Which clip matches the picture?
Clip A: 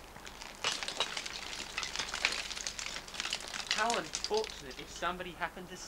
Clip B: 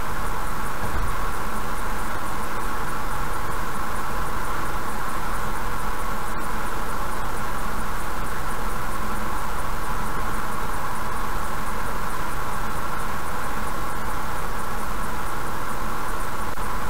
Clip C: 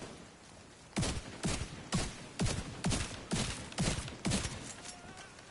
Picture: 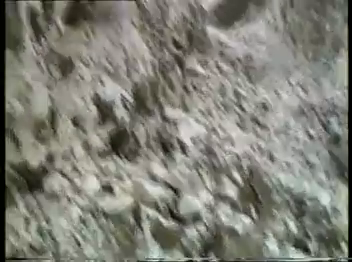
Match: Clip A